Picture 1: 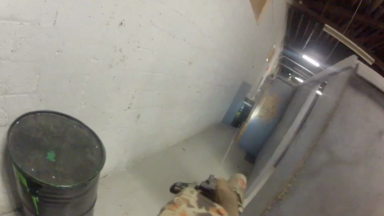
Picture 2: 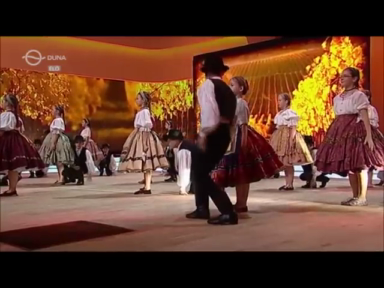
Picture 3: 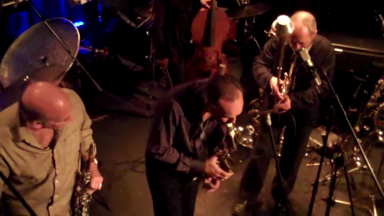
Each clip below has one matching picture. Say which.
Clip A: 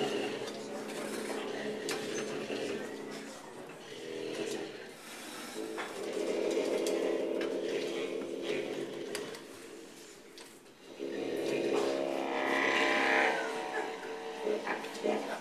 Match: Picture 3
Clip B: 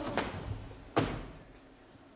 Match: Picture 2